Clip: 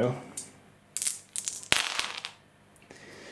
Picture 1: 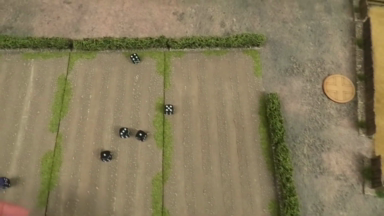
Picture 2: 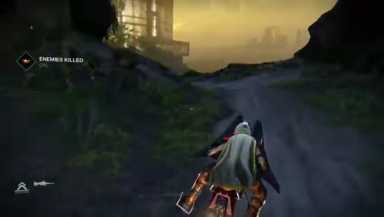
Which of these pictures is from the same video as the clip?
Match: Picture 1